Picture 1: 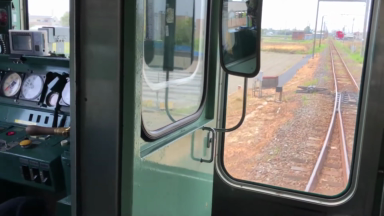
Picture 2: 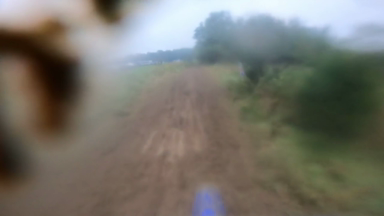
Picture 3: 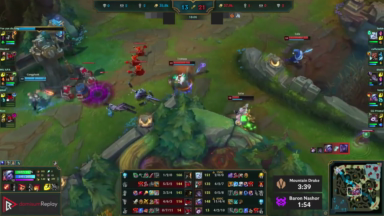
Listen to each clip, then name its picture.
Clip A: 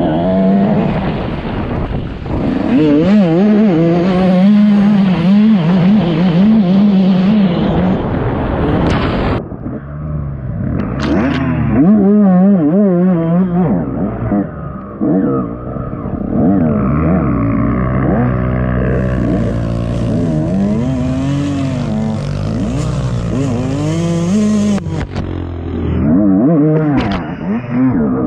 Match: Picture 2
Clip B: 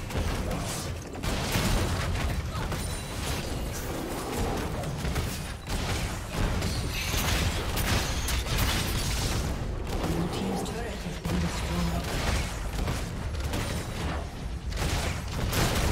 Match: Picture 3